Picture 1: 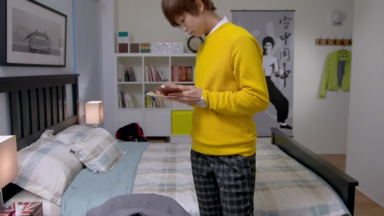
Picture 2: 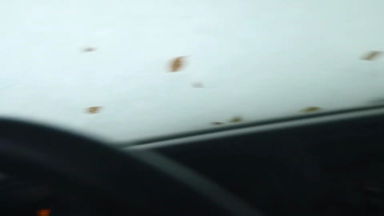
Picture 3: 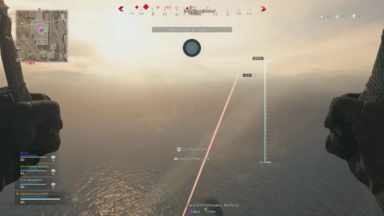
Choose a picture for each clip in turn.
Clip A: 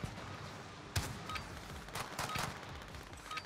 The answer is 3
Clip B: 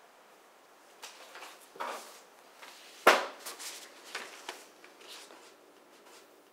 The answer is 1